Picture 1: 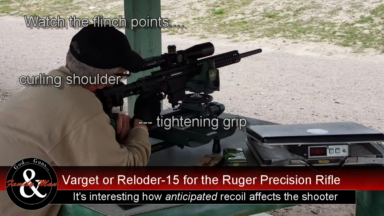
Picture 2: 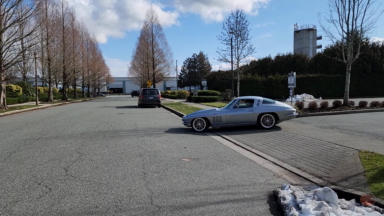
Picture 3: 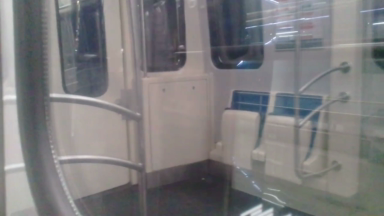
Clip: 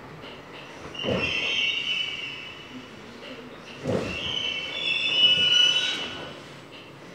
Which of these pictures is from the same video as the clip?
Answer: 3